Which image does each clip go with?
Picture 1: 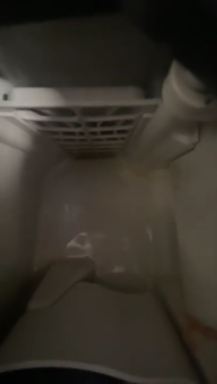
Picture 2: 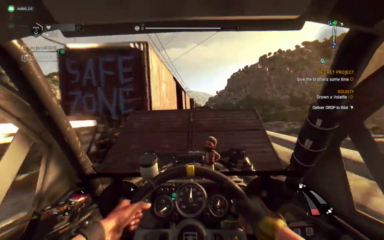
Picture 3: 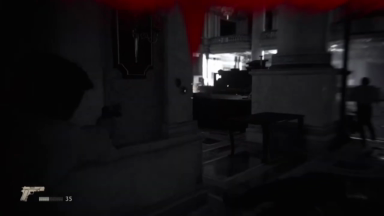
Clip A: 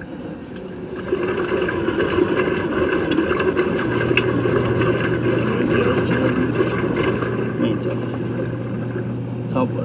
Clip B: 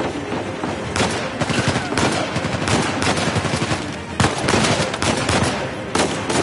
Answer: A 1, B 3